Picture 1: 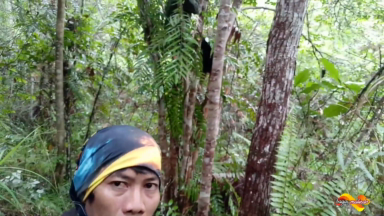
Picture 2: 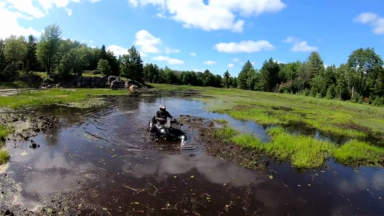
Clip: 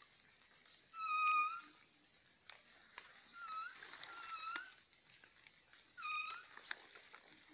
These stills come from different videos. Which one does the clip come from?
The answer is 1